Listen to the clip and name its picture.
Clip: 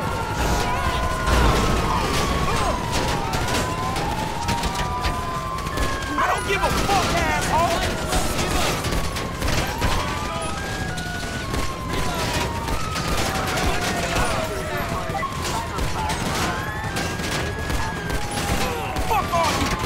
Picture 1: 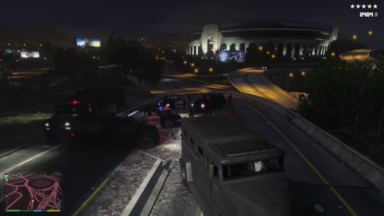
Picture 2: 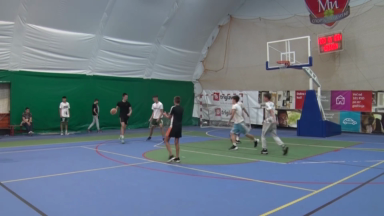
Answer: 1